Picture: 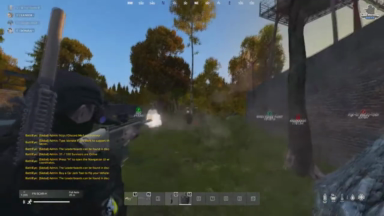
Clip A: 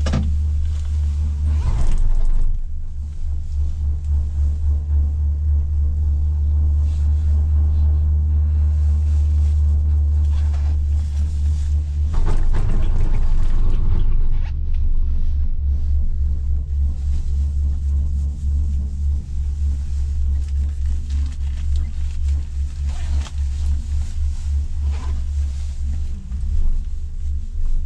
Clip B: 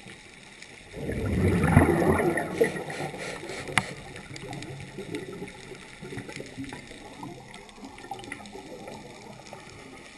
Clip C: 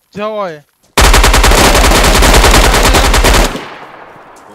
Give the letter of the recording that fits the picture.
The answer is C